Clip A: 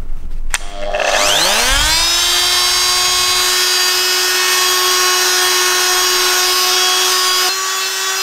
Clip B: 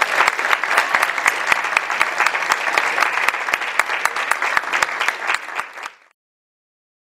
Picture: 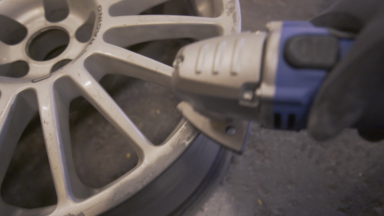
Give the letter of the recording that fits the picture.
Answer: A